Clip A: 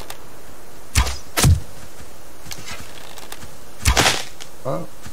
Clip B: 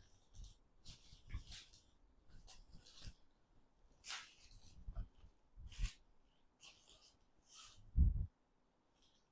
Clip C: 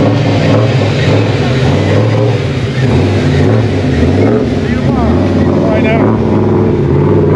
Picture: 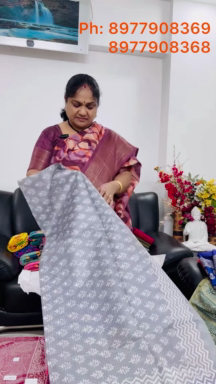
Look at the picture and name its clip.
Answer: B